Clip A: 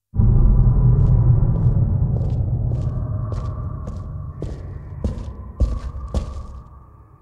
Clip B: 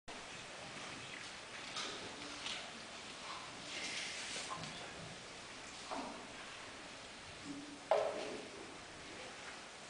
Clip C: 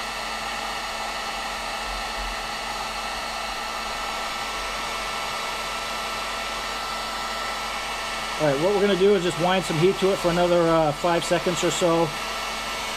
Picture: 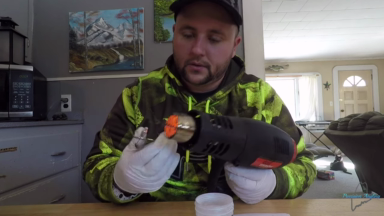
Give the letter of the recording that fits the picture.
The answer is C